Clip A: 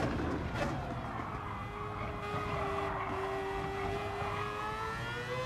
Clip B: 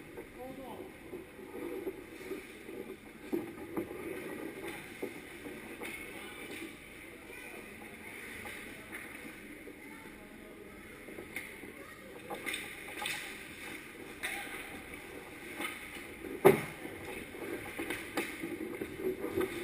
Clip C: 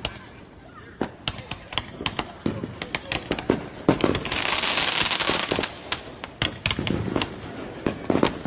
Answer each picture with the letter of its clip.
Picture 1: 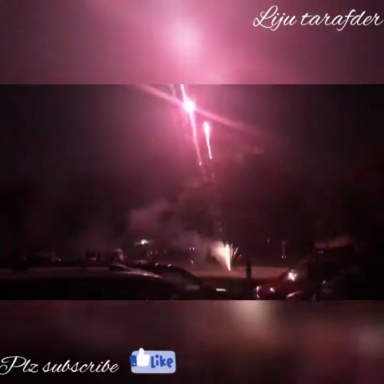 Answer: C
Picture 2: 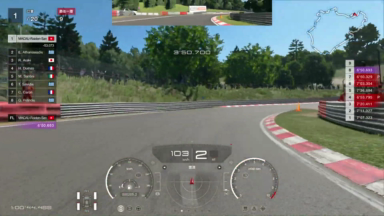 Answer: A